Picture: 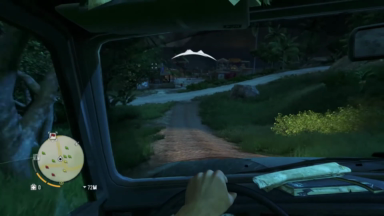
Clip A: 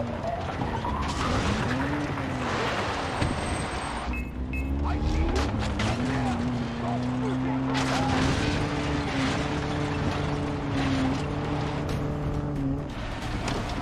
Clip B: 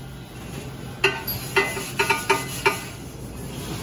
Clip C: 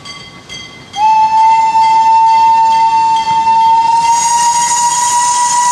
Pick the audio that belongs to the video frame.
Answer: A